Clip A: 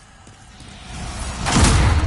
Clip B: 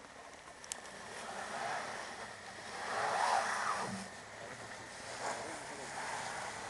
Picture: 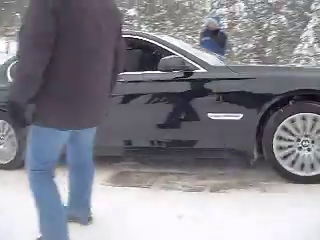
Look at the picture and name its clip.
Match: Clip B